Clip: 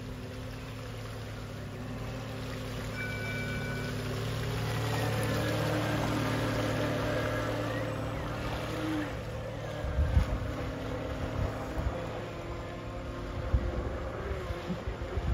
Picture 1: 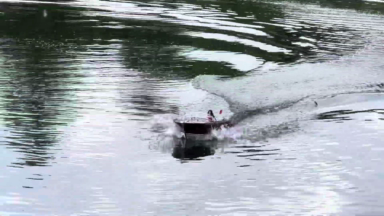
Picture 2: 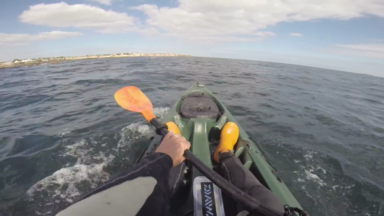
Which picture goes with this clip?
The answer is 1